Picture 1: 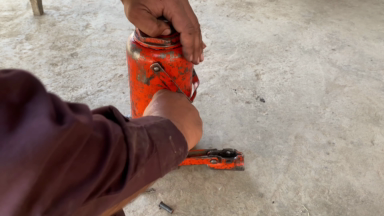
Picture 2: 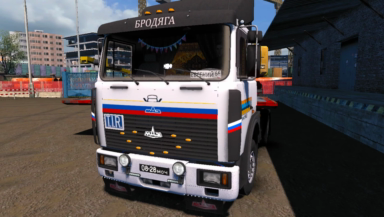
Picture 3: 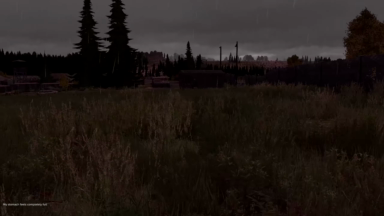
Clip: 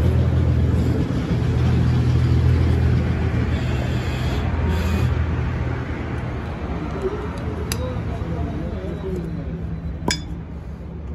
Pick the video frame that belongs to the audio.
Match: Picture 1